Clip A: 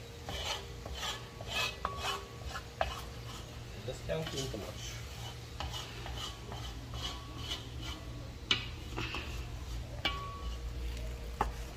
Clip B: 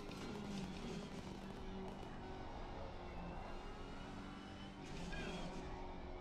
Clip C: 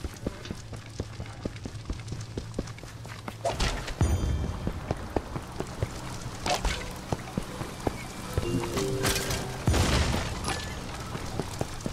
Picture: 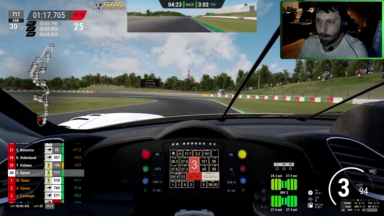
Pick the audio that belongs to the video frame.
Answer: B